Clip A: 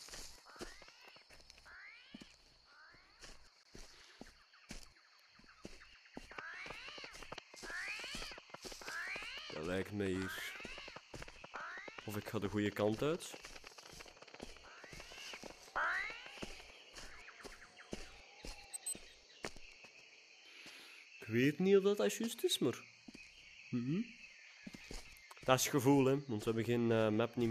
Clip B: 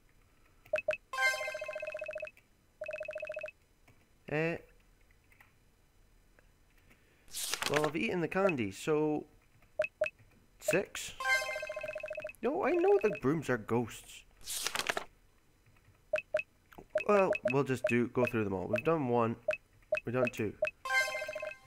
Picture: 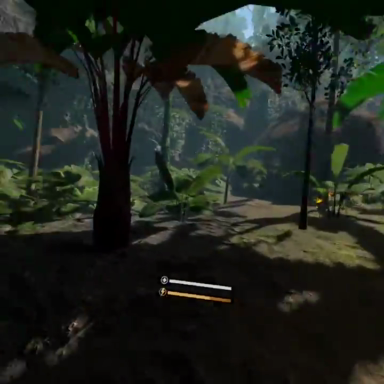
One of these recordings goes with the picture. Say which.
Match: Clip A